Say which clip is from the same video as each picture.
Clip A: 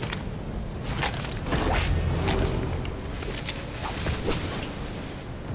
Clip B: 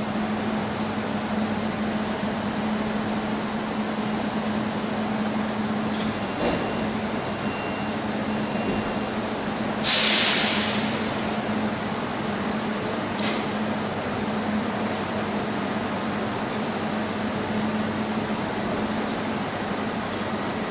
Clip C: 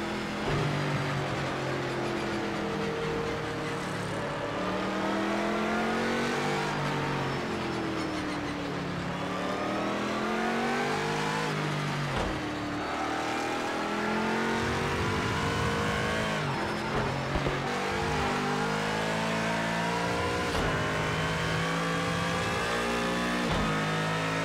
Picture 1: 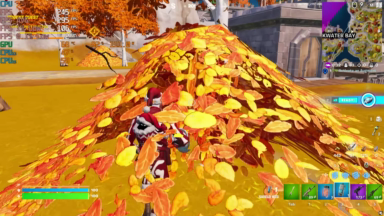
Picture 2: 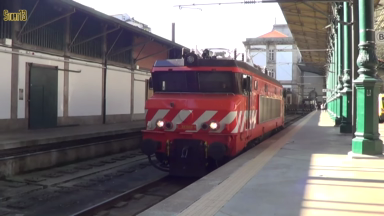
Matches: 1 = A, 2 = B